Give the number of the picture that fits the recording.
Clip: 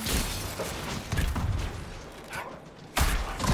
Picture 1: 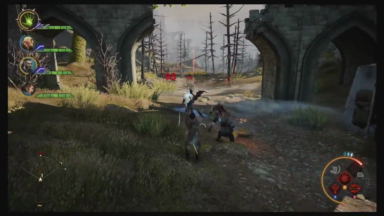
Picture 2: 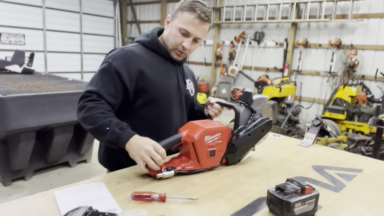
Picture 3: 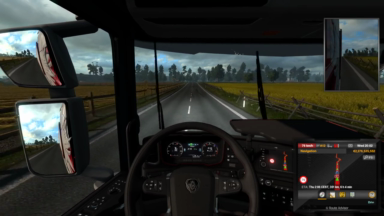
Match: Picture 1